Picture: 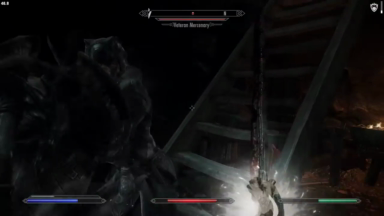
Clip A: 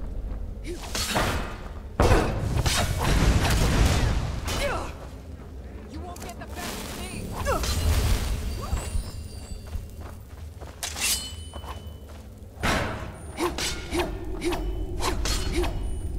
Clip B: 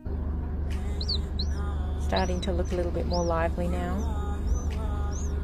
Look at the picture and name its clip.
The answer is A